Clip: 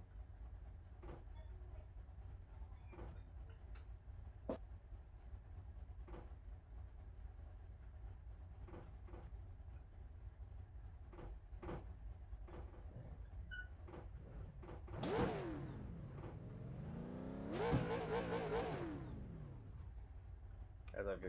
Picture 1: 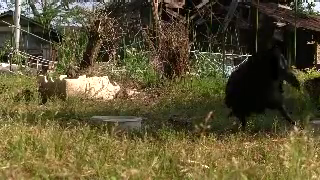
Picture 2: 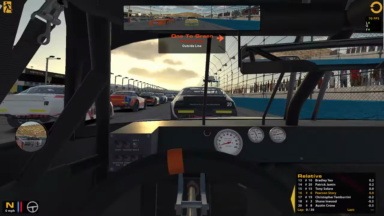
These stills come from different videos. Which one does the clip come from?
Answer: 2